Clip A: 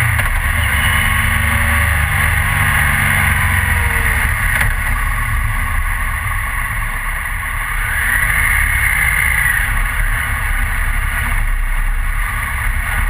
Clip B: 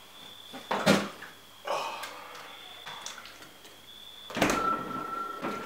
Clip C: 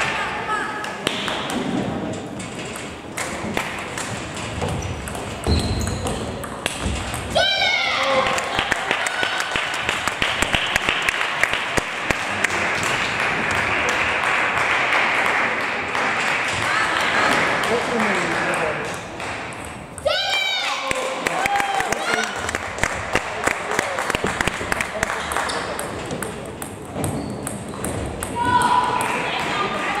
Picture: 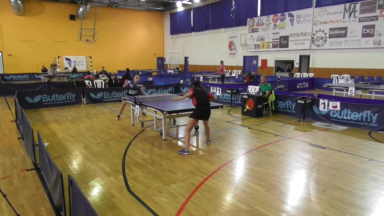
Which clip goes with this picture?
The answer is C